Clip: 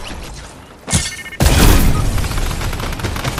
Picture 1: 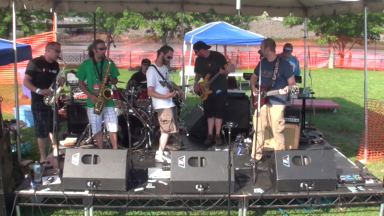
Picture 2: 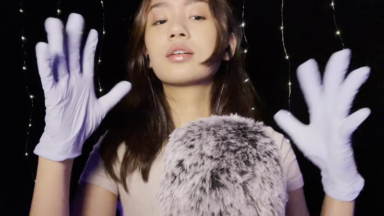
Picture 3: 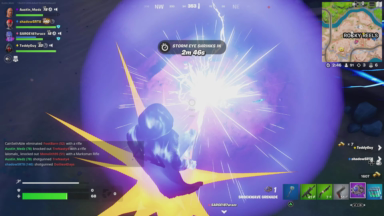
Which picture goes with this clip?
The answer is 3